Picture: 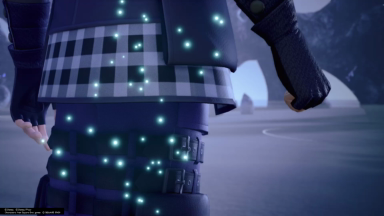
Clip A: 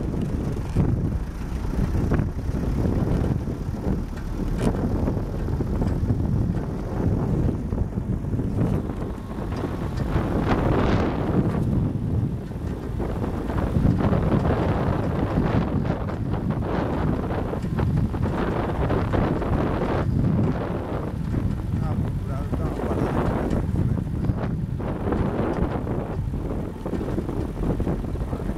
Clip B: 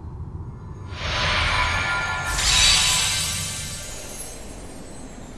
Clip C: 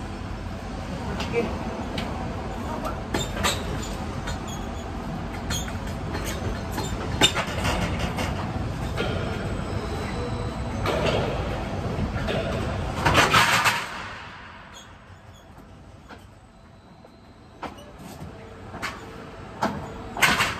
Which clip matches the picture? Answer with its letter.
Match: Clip B